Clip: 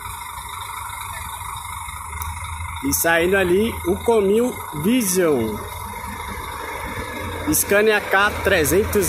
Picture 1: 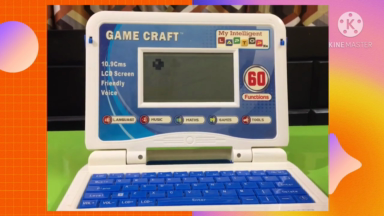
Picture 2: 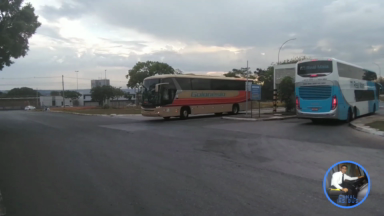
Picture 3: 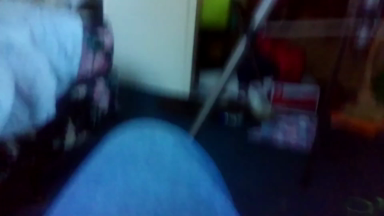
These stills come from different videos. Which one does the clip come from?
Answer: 2